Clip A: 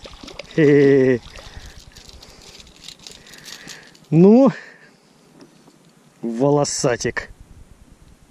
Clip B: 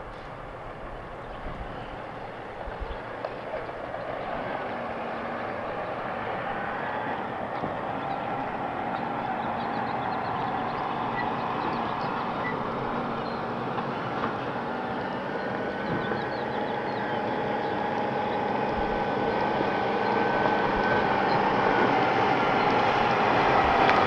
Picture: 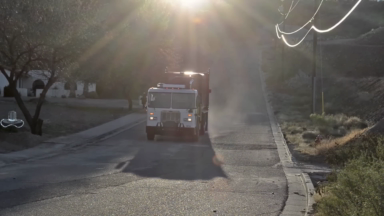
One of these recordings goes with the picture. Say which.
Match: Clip B